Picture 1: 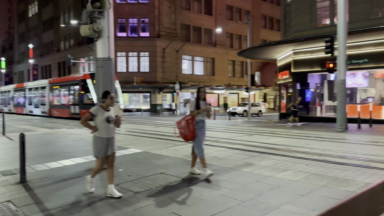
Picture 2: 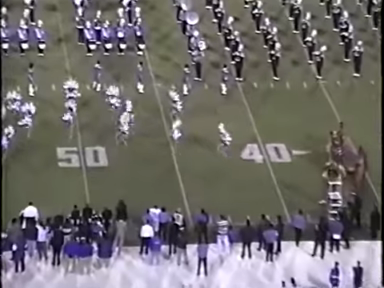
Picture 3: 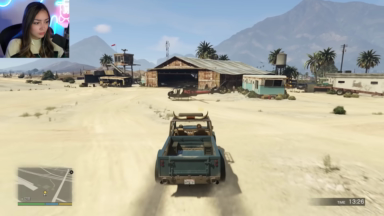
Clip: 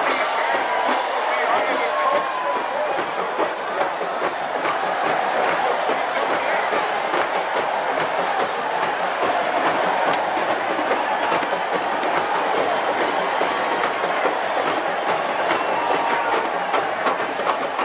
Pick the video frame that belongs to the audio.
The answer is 2